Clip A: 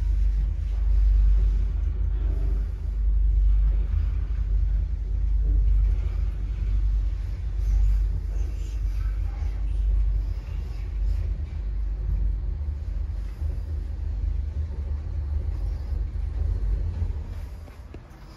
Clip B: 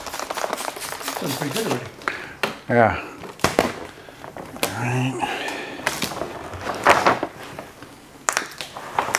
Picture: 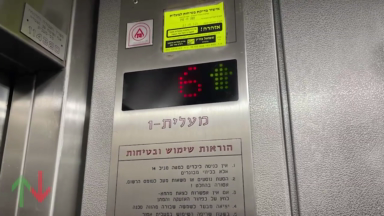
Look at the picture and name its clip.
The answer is A